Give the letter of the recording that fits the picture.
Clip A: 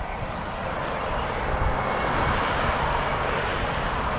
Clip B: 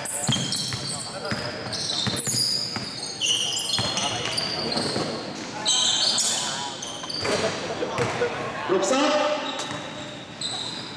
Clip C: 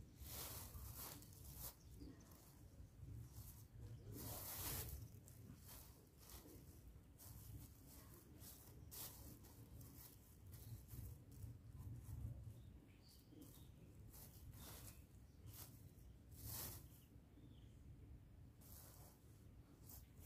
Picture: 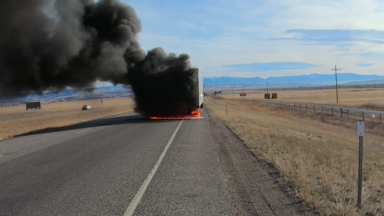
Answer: A